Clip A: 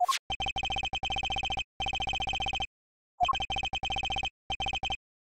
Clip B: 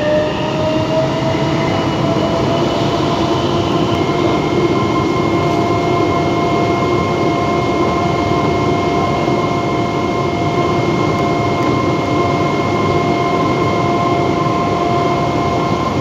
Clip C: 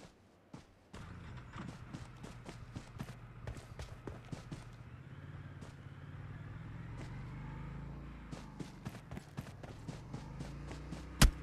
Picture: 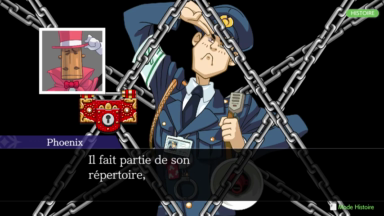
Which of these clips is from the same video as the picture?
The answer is A